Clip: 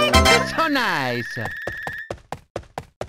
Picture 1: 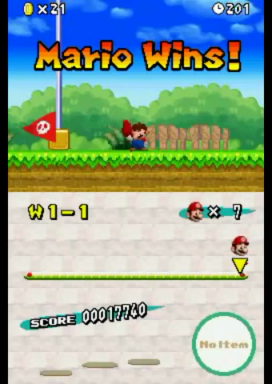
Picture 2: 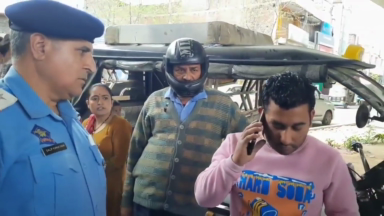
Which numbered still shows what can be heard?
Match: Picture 1